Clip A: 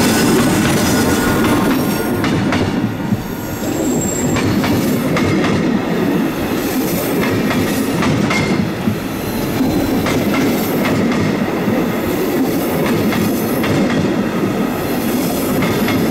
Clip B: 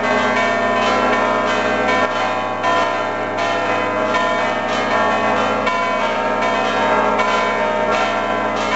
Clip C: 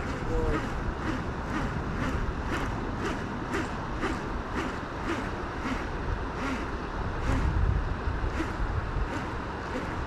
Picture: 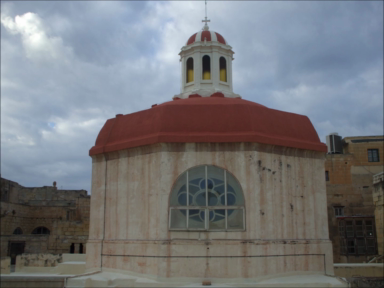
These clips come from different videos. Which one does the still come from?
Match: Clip B